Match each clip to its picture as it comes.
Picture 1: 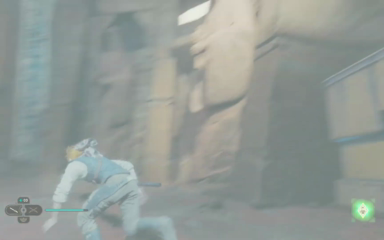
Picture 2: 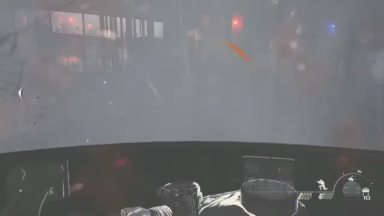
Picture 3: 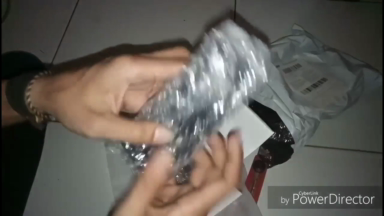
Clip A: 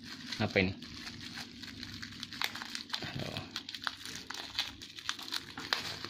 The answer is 3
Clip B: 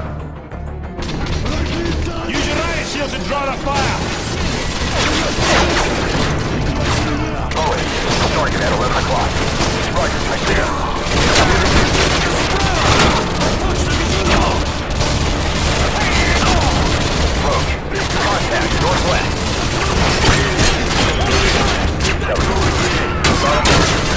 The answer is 2